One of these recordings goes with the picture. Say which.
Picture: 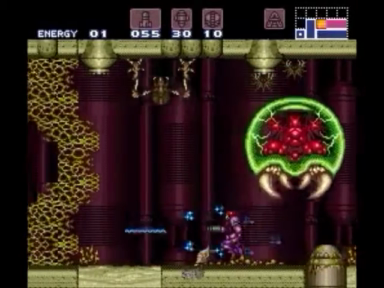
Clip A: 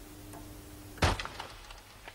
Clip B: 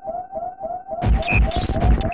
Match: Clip B